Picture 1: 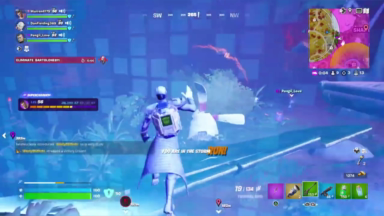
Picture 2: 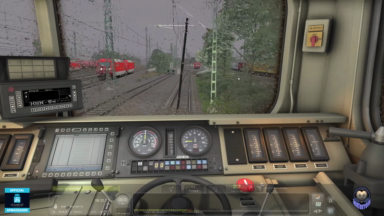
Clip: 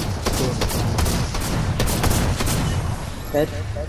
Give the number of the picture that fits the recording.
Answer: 1